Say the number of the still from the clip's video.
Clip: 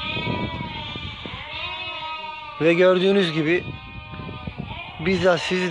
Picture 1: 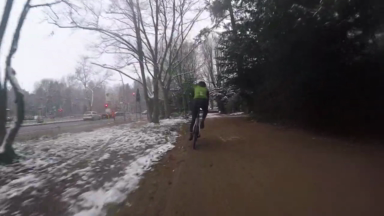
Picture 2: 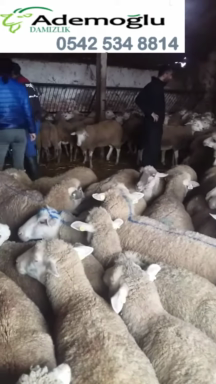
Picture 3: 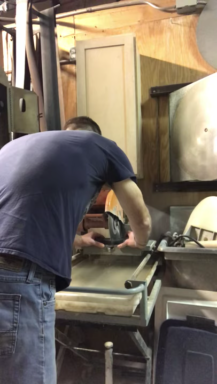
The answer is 2